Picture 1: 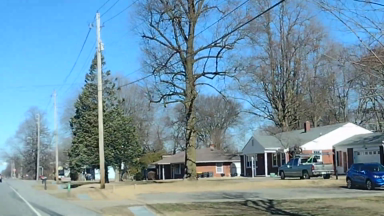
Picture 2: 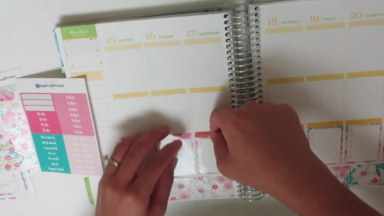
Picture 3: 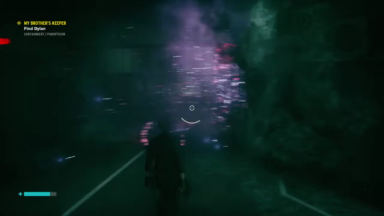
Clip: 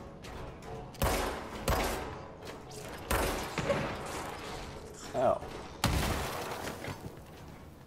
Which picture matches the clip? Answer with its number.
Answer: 3